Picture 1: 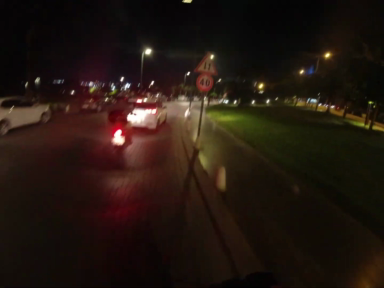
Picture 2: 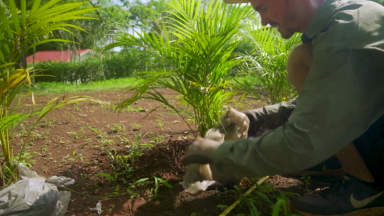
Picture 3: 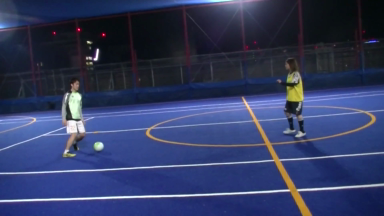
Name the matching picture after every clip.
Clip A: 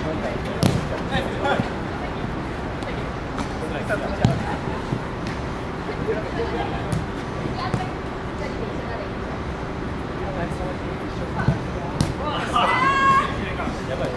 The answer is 3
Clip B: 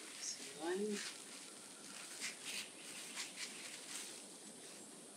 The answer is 2